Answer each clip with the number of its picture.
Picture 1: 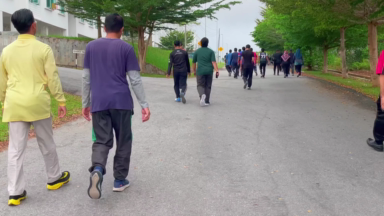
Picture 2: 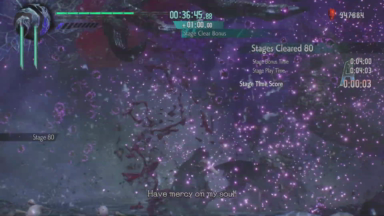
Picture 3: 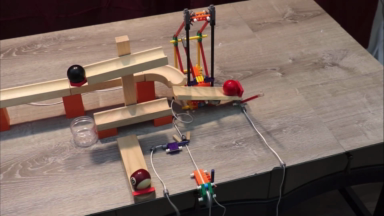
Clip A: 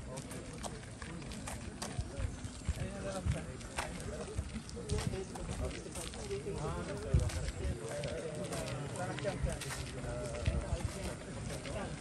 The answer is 1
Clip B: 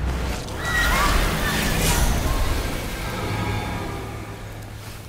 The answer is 2